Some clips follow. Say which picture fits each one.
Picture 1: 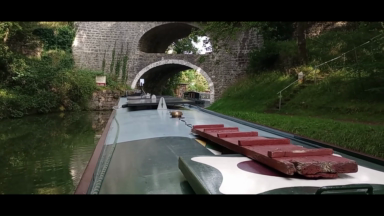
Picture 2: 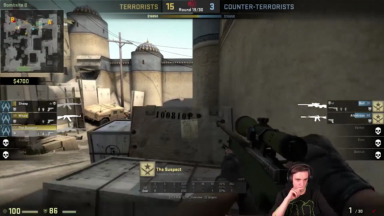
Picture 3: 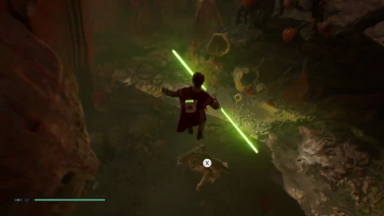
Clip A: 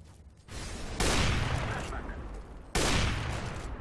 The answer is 2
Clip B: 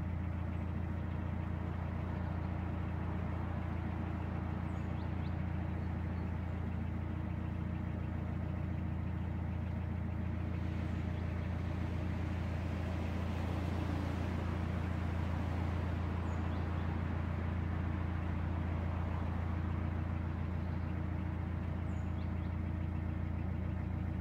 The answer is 1